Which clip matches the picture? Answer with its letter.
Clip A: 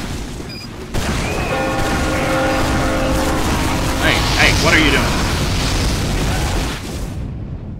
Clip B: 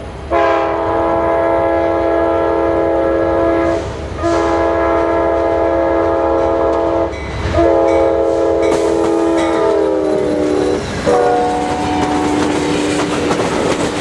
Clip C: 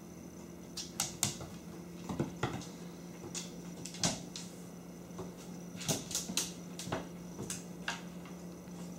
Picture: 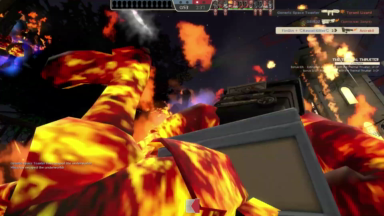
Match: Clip A